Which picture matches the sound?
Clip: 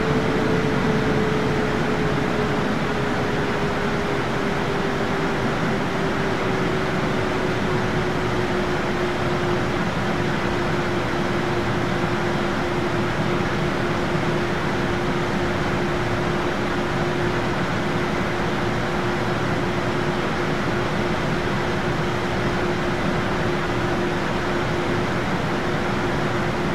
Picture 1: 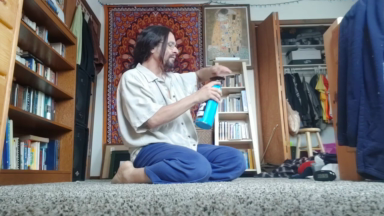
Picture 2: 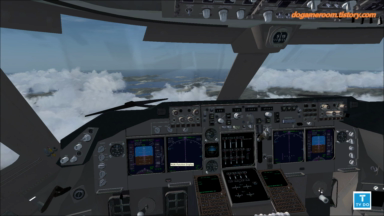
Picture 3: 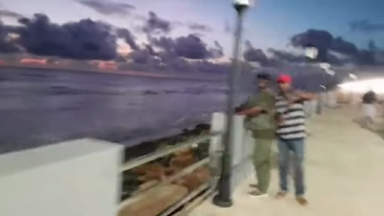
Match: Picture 2